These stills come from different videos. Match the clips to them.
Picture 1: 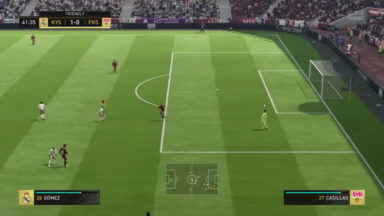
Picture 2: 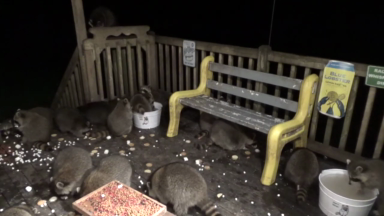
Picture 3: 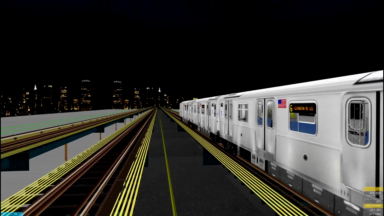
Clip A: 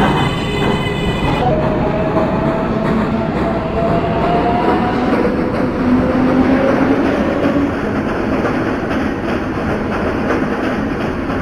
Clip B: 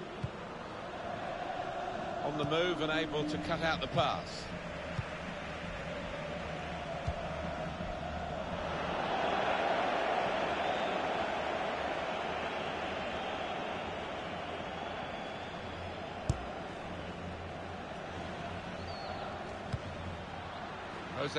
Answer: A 3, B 1